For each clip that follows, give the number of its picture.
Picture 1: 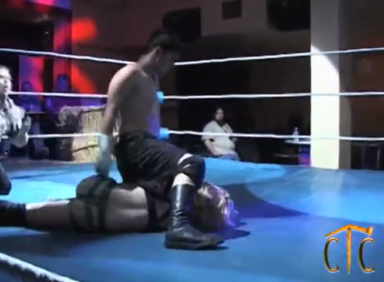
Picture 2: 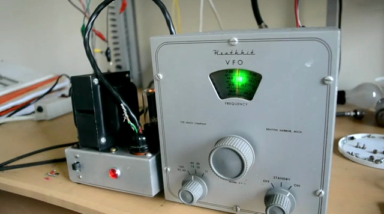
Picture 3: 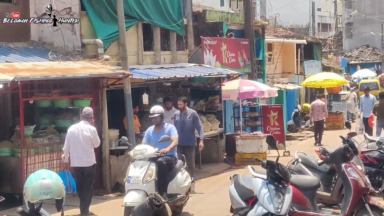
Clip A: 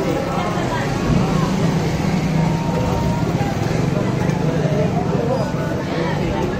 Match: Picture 3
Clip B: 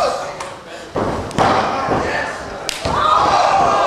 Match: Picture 1